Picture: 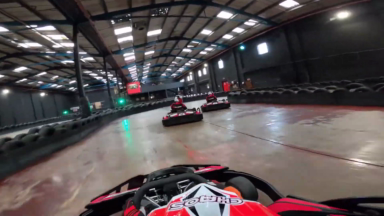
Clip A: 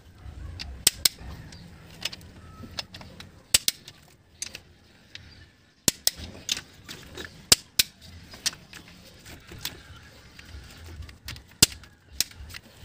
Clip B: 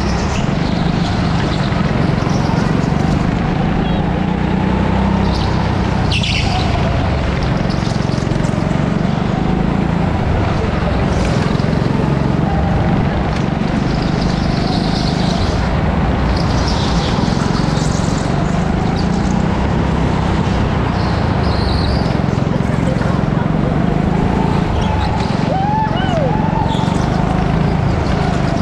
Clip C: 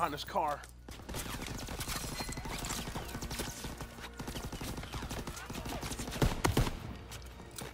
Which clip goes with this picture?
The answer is B